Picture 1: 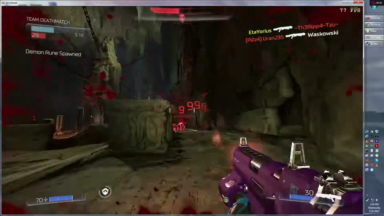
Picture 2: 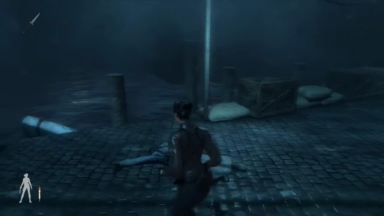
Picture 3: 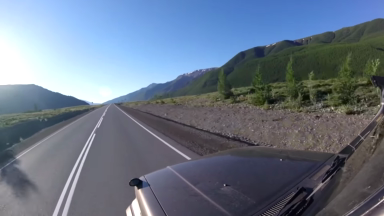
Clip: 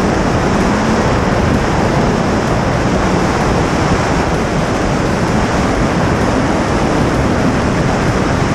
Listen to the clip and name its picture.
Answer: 3